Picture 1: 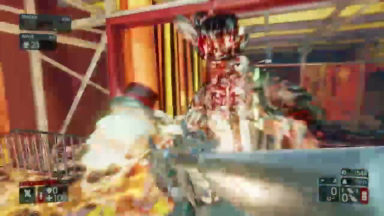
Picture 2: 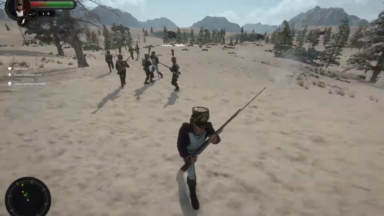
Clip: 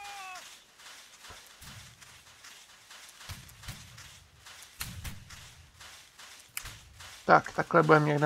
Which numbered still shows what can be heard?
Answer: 2